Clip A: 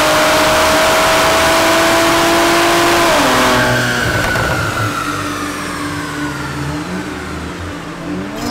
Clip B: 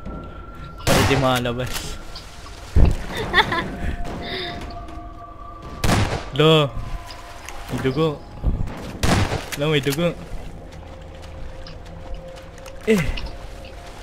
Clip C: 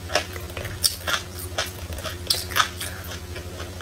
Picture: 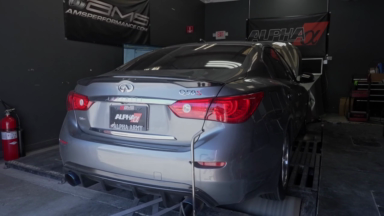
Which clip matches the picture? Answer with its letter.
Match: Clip A